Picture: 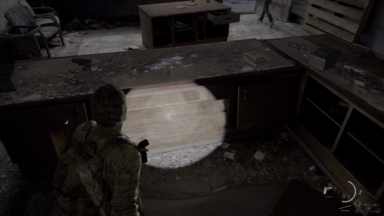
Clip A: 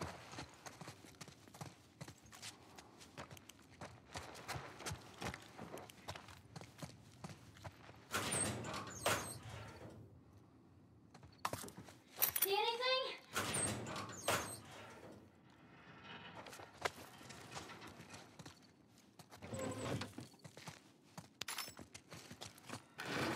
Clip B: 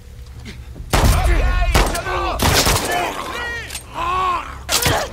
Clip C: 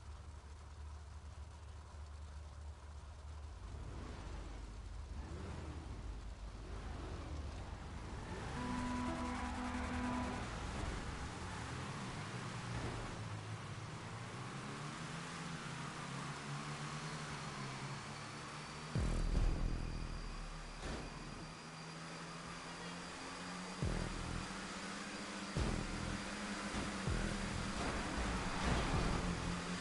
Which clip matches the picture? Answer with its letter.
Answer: A